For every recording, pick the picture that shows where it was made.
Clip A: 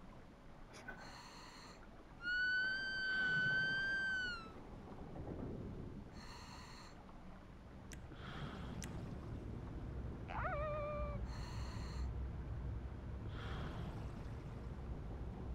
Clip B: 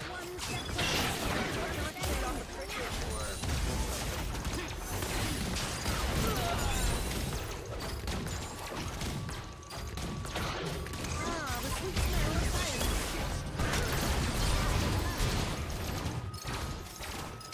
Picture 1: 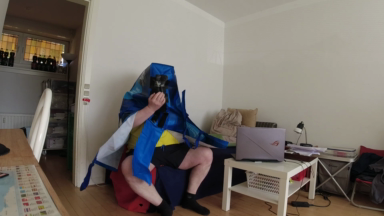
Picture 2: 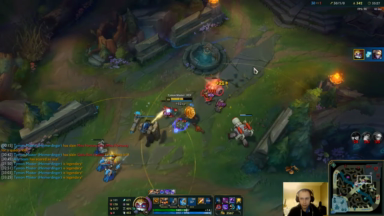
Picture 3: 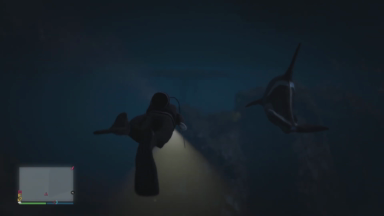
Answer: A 3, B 2